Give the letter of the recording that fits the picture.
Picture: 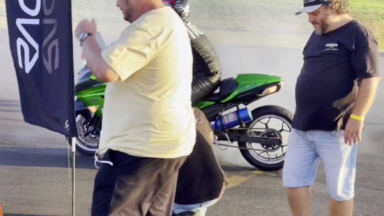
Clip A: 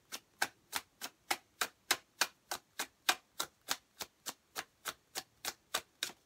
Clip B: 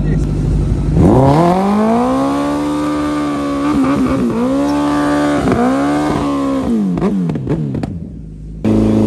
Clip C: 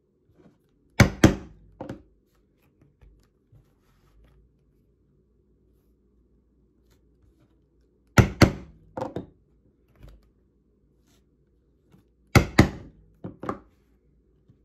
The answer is B